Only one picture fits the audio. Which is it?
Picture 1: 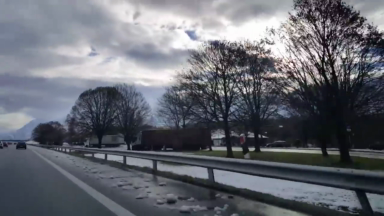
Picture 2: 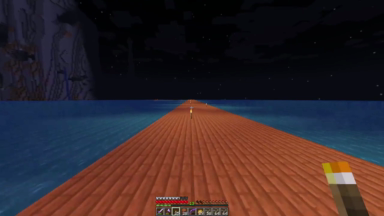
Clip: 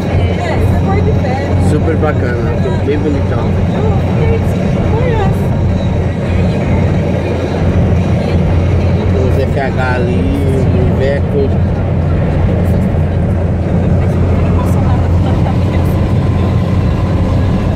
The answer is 1